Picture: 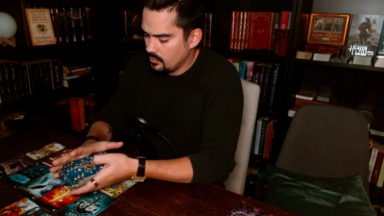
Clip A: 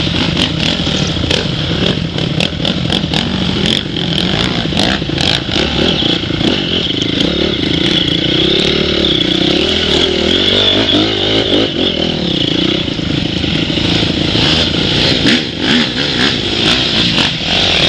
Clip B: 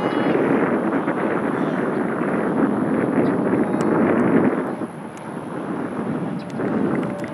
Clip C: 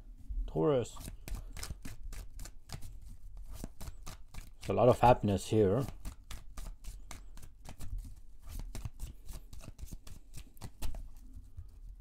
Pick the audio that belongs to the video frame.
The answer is C